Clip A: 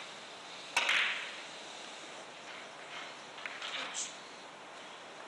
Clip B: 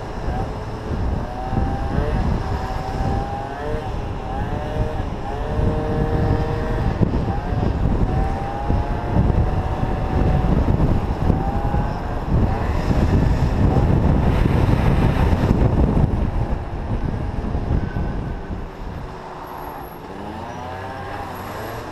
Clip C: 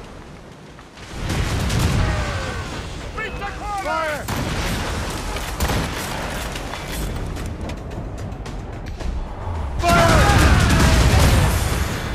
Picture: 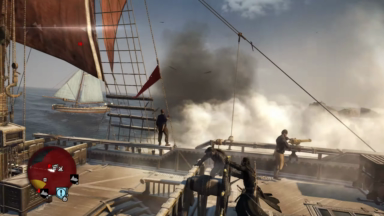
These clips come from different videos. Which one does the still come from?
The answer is C